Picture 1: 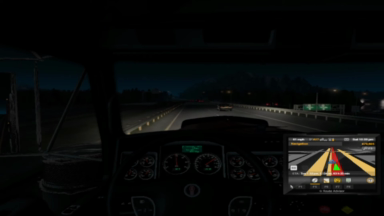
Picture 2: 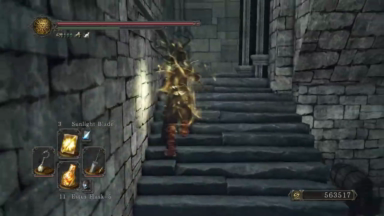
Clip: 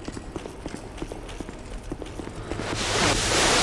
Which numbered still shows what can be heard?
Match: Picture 2